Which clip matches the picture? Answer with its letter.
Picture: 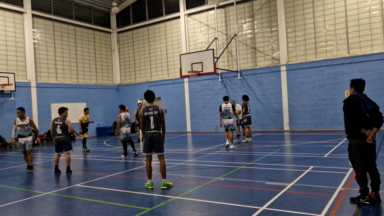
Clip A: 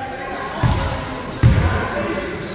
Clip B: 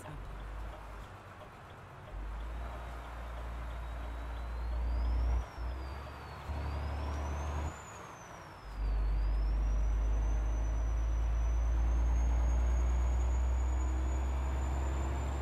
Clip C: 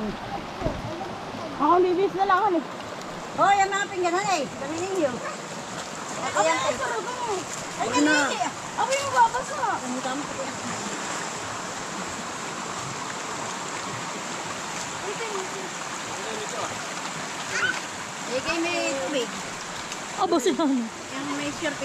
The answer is A